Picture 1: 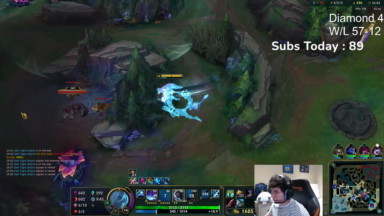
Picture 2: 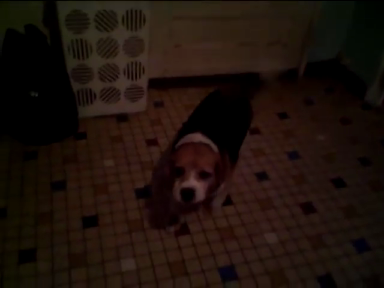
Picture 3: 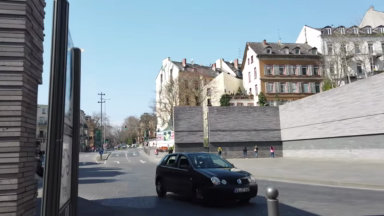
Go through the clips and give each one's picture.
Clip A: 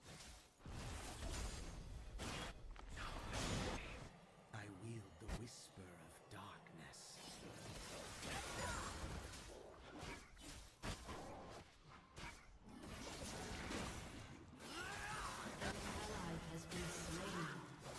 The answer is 1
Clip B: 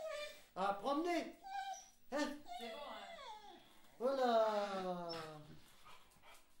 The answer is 2